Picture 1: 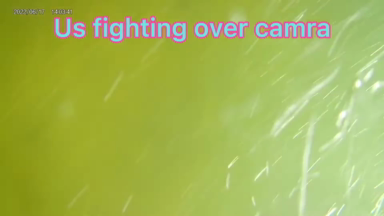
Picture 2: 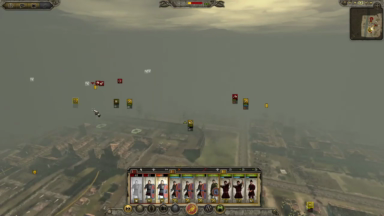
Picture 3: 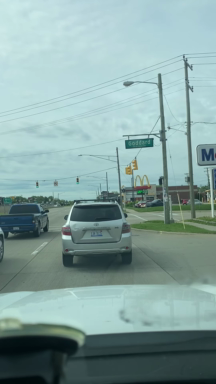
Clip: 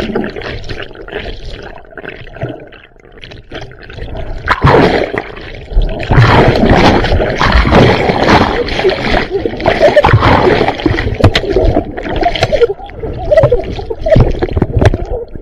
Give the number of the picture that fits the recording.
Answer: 1